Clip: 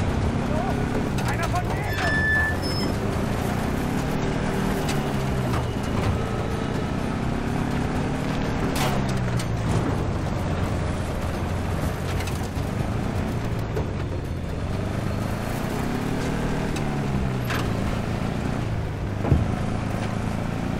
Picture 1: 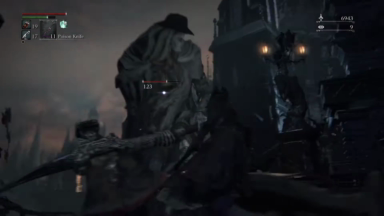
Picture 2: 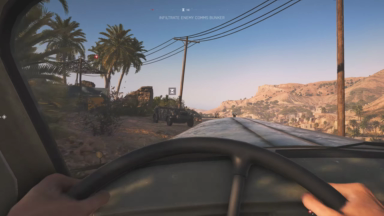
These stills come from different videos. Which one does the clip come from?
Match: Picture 2